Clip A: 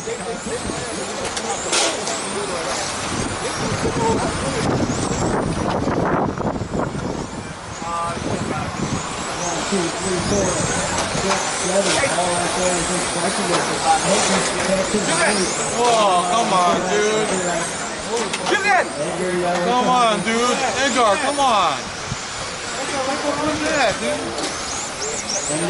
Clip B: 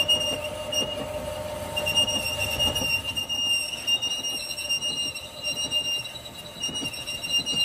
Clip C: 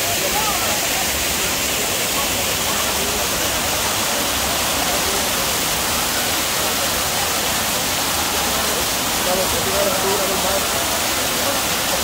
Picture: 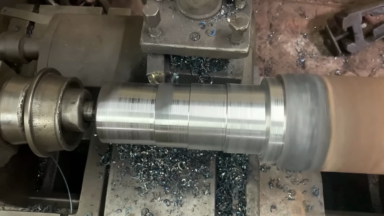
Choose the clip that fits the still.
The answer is B